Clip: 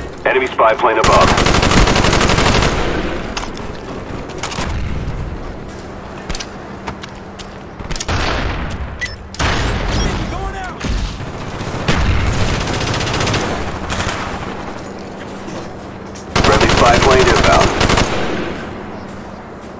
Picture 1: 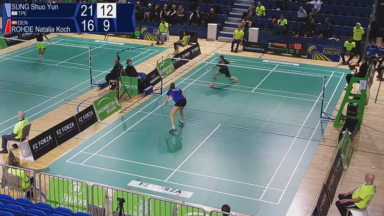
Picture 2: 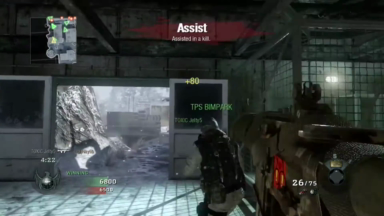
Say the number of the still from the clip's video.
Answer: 2